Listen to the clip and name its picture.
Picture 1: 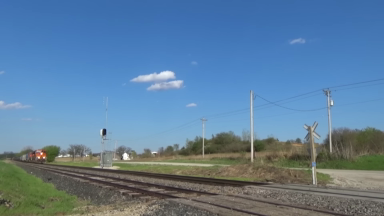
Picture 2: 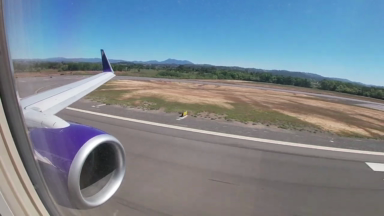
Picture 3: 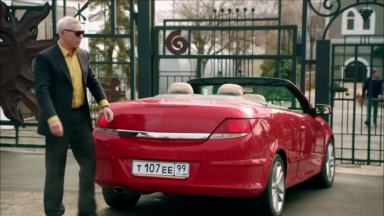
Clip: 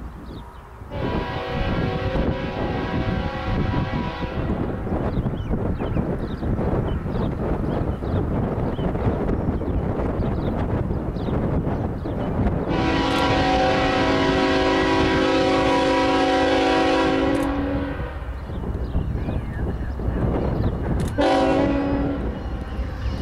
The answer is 1